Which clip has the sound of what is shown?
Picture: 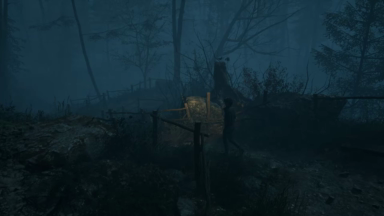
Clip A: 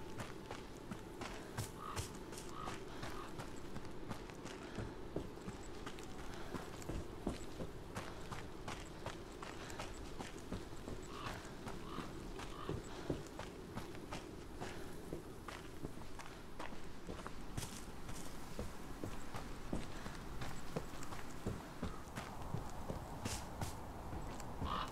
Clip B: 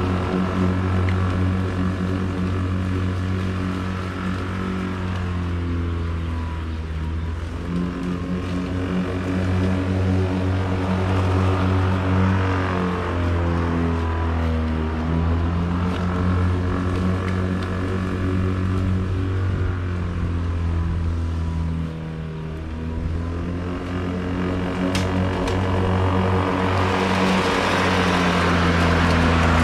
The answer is A